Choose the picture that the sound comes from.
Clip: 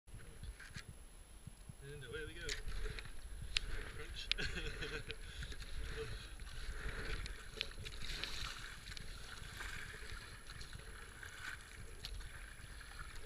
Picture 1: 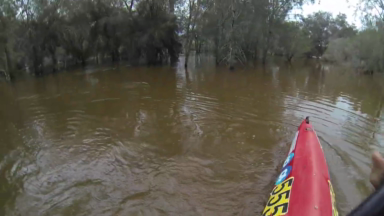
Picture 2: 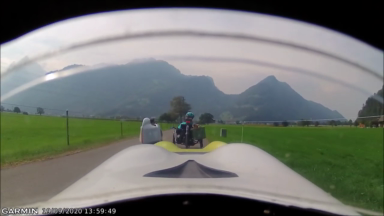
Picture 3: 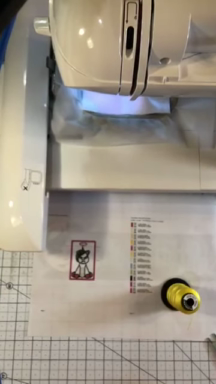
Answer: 1